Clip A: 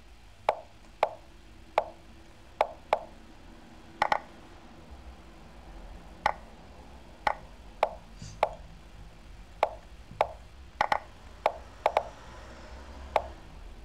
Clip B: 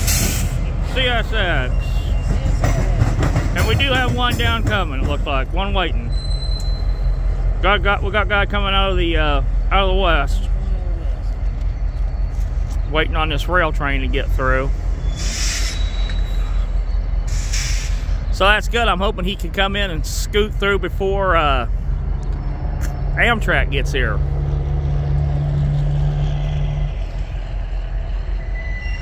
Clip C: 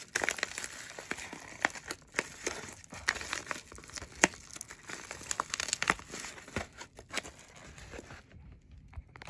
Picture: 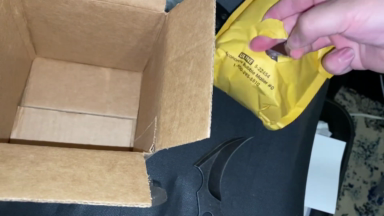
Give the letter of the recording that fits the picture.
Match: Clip C